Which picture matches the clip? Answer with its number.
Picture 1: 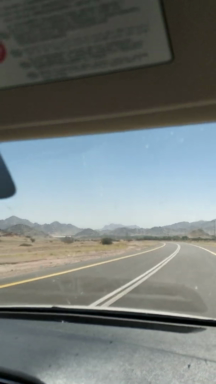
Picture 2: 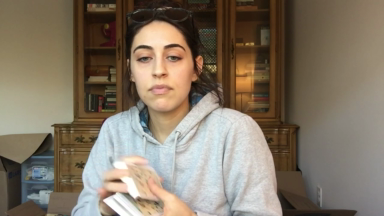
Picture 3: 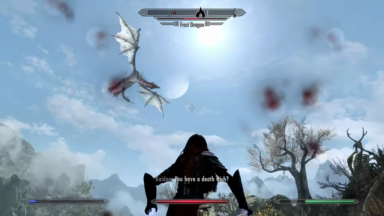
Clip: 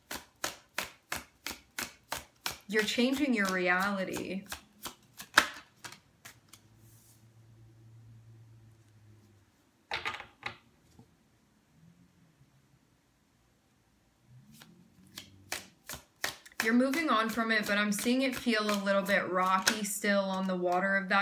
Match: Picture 2